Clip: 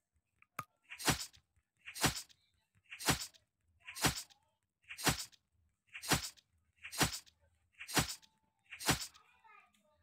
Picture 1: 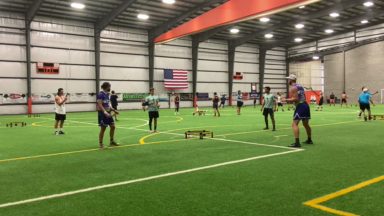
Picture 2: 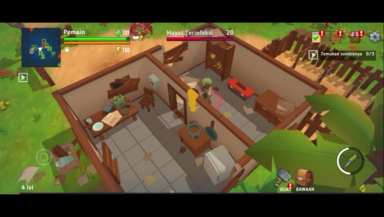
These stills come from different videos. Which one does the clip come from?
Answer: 2